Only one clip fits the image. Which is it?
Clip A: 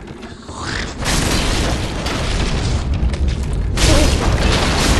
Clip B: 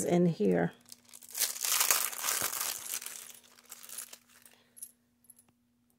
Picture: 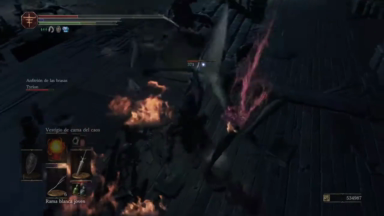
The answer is A